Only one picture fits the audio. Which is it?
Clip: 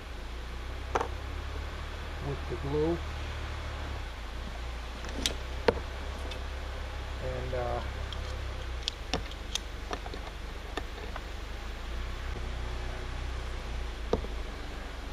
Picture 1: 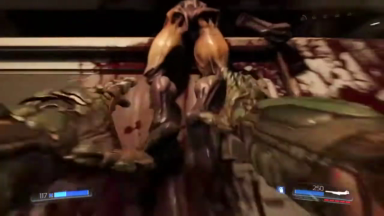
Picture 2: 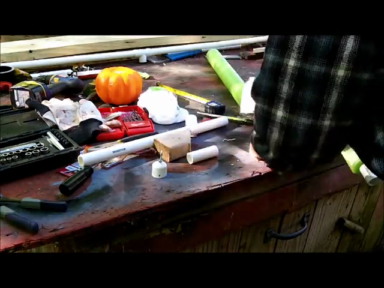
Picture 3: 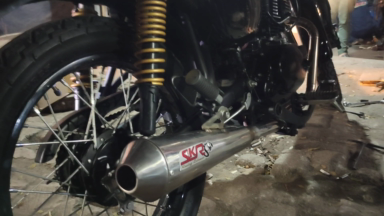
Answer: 2